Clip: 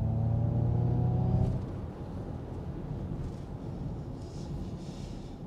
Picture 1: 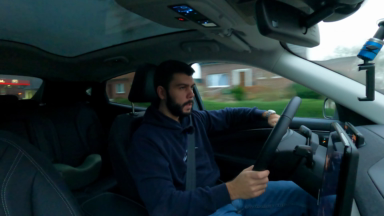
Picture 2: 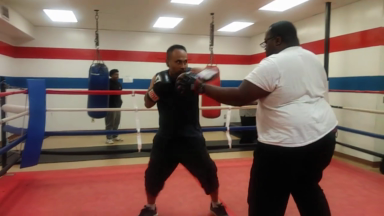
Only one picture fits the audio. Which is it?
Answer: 1